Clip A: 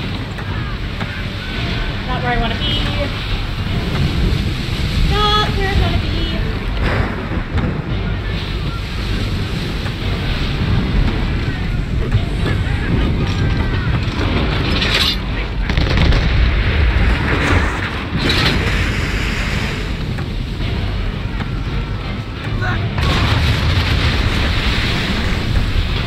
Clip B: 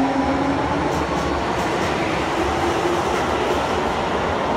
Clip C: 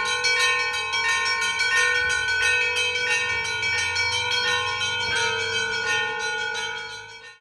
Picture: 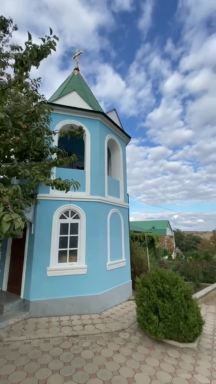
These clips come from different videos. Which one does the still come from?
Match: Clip C